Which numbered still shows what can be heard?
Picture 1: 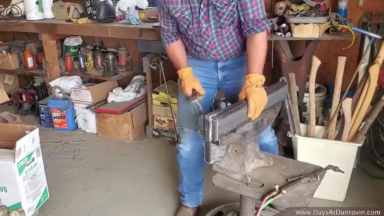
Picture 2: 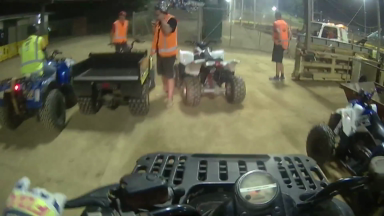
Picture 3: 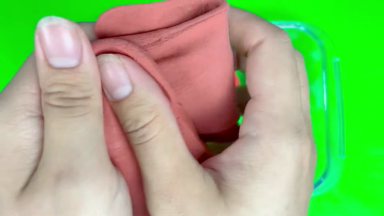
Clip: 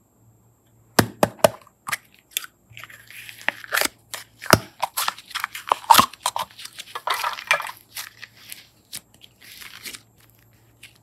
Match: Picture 3